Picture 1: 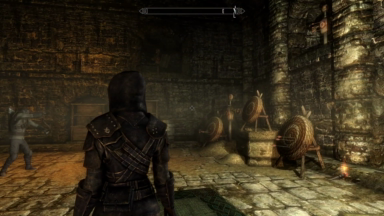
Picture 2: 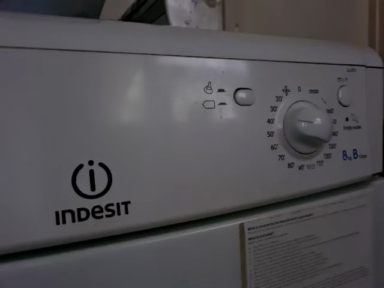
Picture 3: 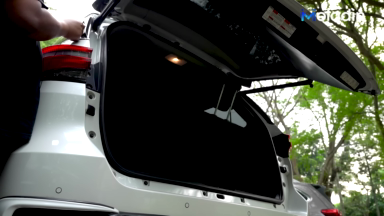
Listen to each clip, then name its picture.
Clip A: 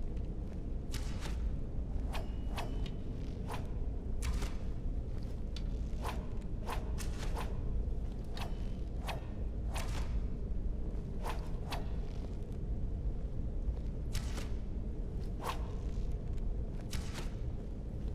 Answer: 1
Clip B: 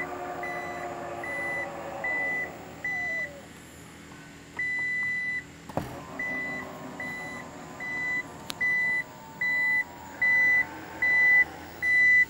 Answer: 3